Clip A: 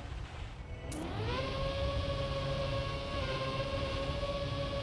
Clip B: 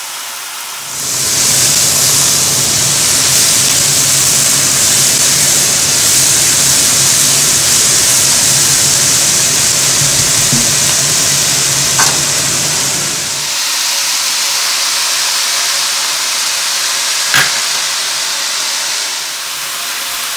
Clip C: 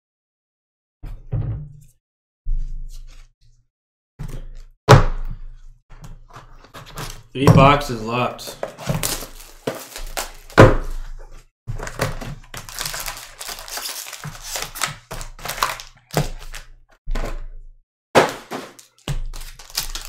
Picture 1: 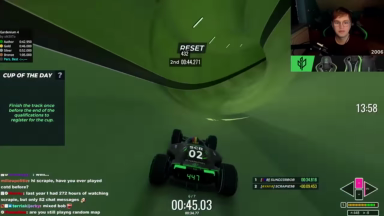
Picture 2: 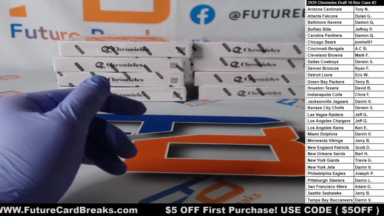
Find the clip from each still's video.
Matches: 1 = A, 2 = C